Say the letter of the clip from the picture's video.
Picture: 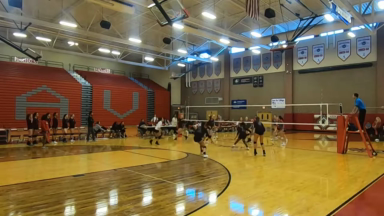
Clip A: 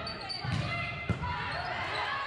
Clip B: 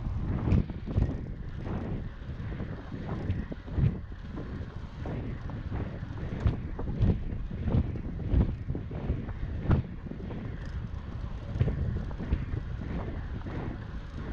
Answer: A